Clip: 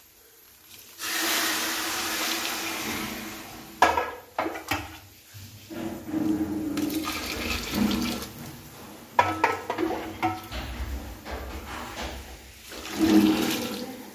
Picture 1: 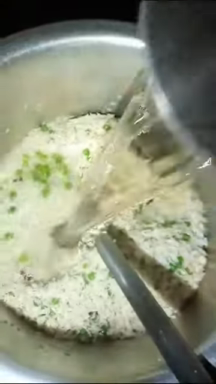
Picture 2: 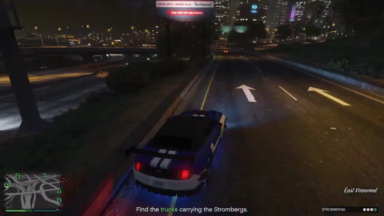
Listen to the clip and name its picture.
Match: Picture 1